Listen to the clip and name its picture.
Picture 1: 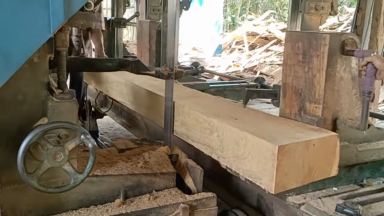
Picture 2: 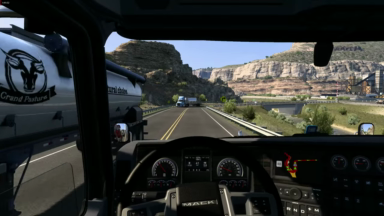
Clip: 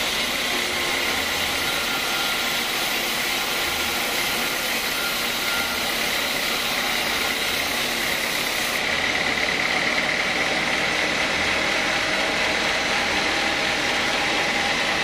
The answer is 1